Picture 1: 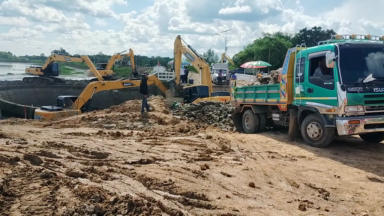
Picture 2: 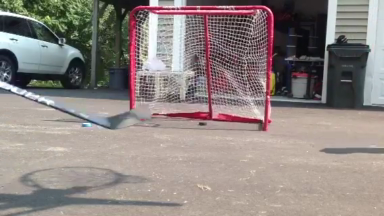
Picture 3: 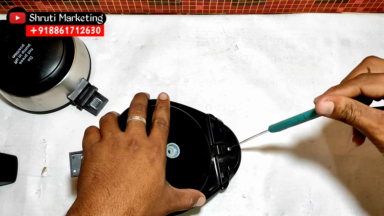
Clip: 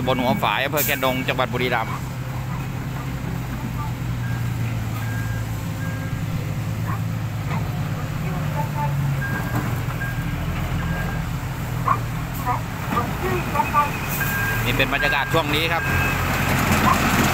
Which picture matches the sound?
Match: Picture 1